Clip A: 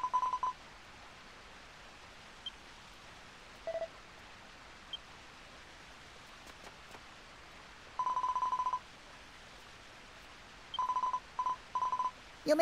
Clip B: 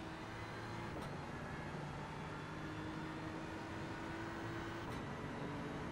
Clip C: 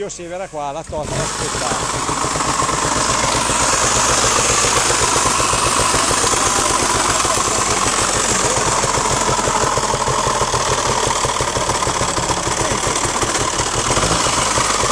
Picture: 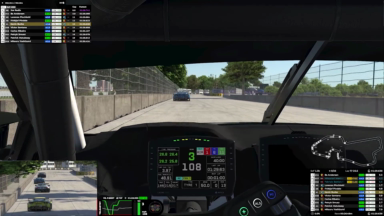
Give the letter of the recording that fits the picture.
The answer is B